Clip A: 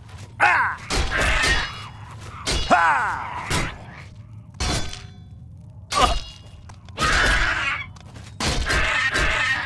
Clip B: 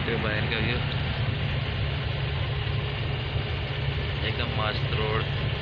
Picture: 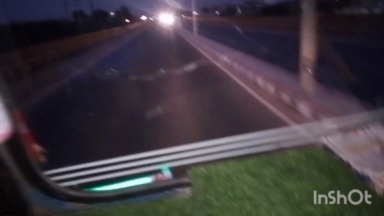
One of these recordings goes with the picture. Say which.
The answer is B